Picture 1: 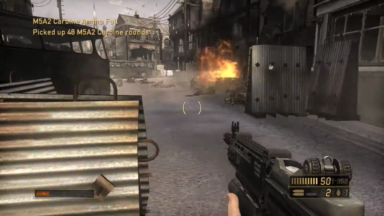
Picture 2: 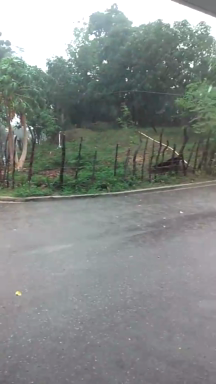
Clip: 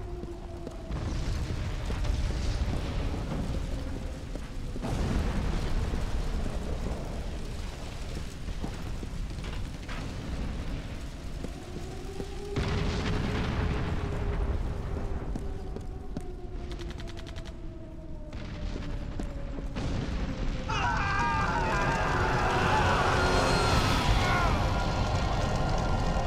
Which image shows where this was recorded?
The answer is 1